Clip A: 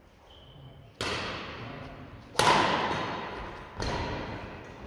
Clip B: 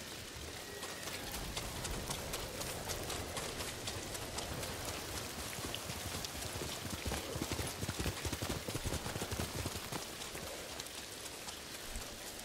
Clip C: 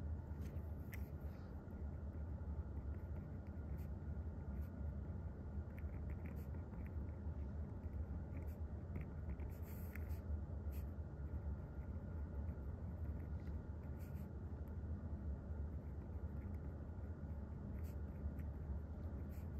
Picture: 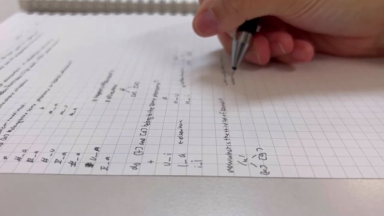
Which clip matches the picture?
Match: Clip C